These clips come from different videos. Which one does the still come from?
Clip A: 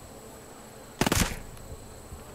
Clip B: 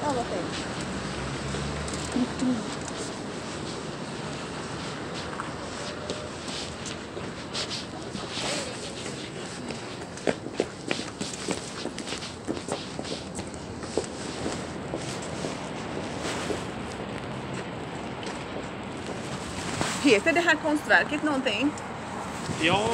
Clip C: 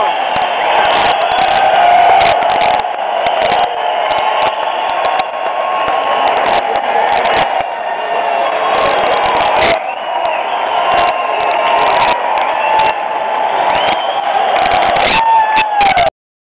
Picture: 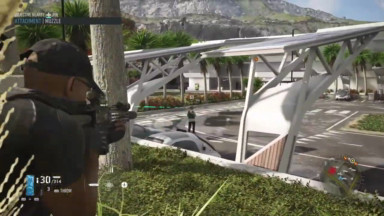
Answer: A